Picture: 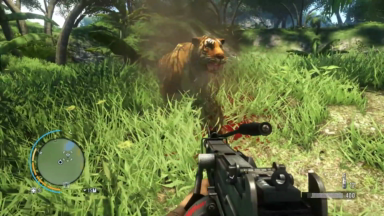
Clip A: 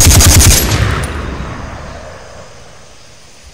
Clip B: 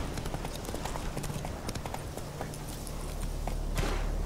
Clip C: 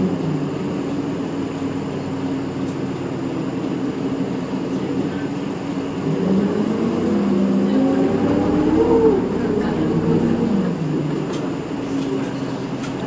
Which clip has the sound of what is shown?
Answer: A